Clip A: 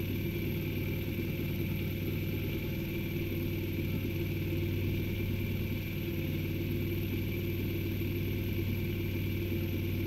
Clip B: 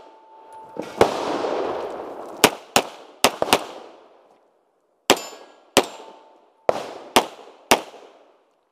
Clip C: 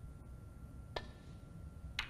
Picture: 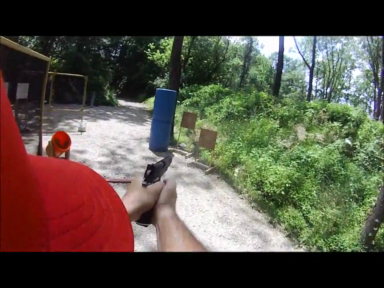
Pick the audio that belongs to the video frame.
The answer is B